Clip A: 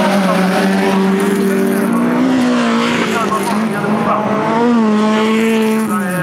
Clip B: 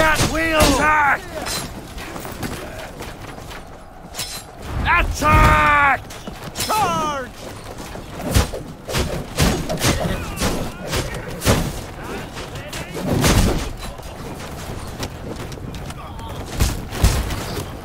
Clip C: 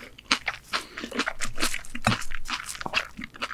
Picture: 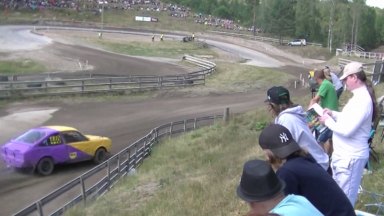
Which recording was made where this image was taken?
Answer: A